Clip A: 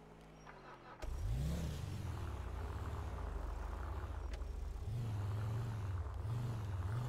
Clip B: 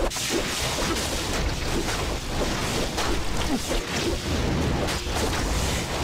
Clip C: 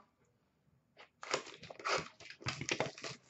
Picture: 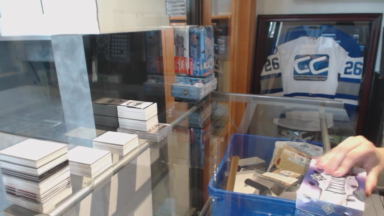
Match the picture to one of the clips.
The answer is C